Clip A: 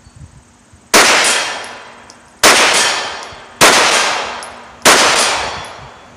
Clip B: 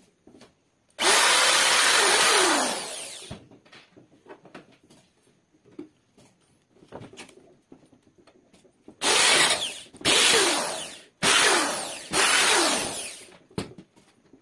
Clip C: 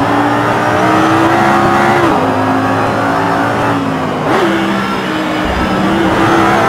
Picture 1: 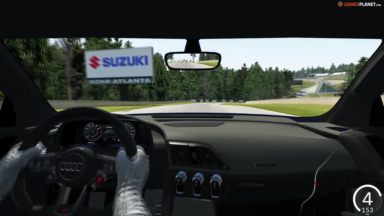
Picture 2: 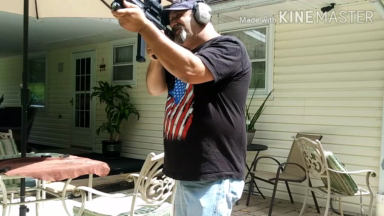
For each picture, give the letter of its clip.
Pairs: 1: C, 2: A